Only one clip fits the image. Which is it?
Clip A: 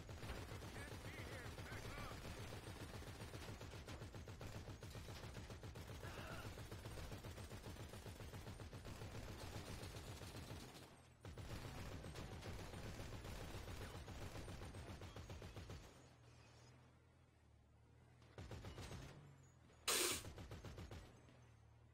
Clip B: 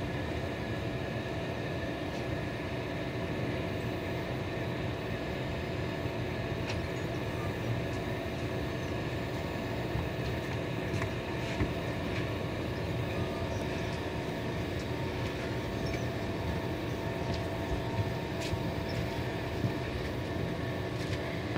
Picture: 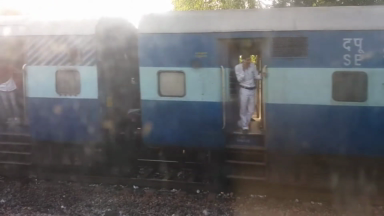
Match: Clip B